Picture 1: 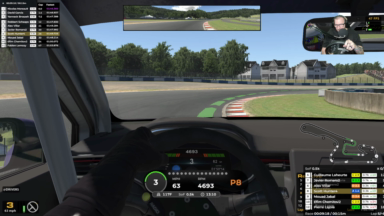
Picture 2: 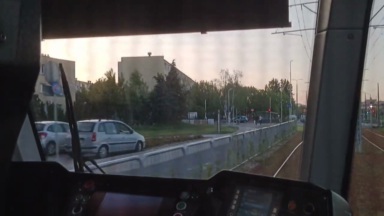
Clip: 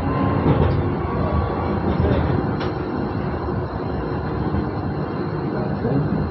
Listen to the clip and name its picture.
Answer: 2